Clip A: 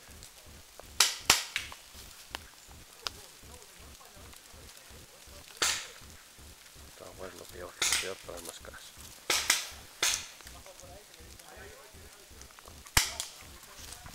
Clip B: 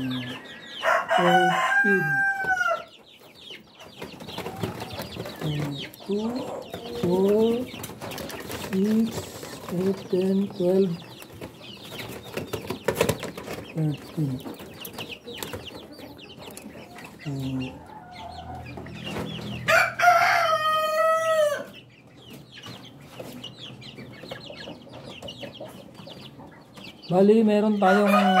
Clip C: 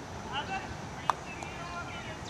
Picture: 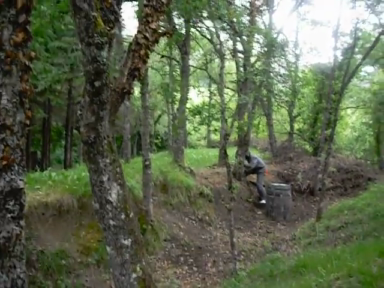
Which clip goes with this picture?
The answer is A